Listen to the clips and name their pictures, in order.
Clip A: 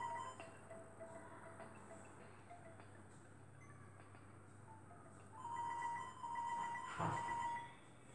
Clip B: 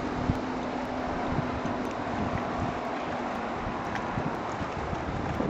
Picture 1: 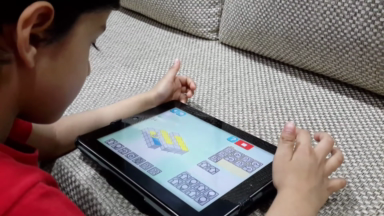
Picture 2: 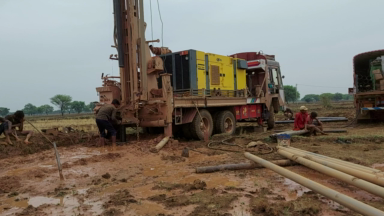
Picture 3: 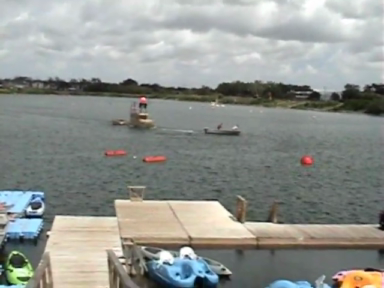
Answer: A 1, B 3